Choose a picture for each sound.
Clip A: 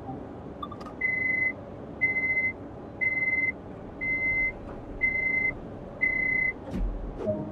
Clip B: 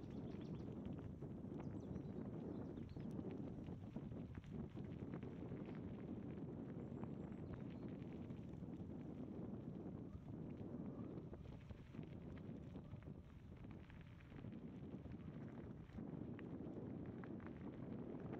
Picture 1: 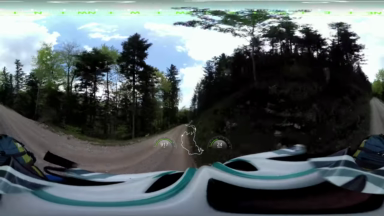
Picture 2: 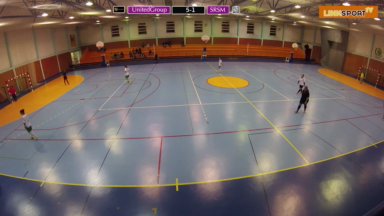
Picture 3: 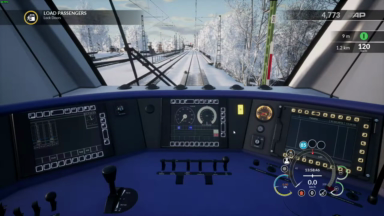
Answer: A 3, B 1